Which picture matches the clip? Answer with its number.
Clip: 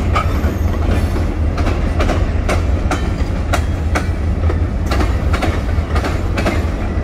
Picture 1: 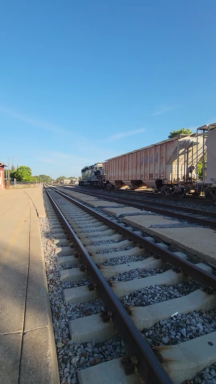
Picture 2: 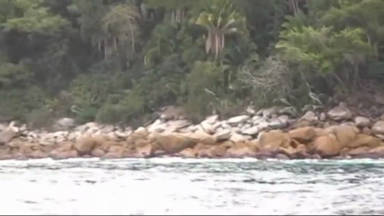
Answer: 1